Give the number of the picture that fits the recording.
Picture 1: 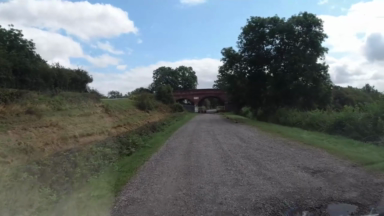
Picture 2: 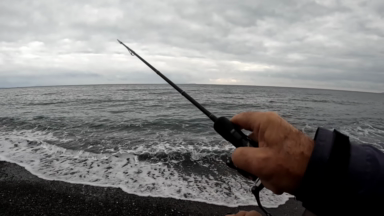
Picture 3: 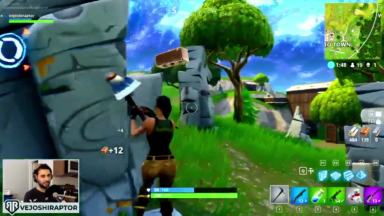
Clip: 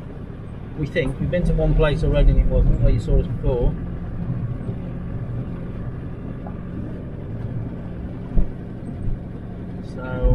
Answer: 1